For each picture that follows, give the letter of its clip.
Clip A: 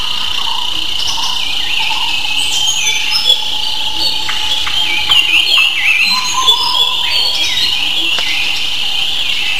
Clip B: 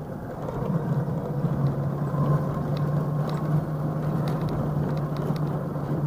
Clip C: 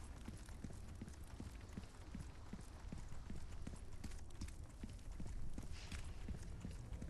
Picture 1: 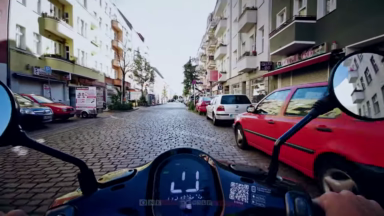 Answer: B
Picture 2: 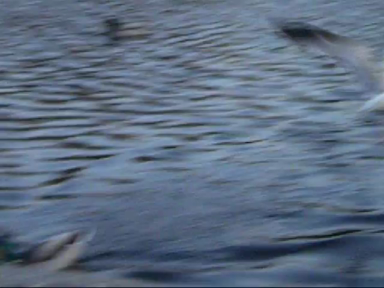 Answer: A